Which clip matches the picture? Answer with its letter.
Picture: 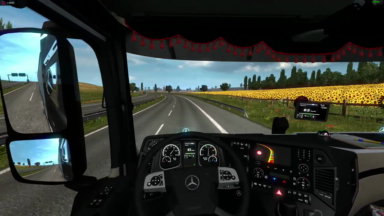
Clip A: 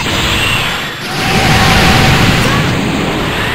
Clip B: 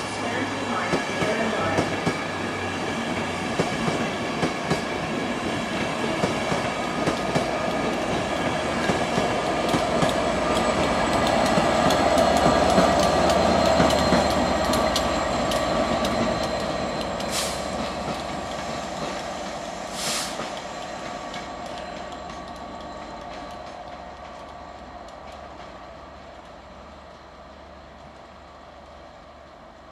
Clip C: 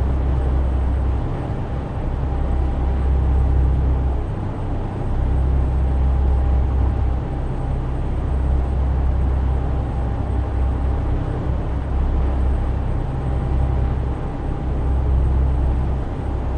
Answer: C